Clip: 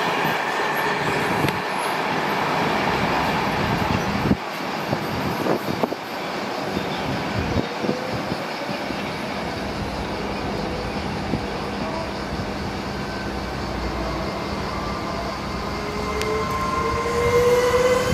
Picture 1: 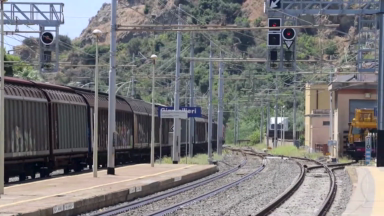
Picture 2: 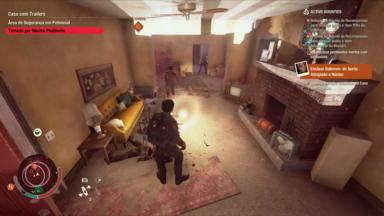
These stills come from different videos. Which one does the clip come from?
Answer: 1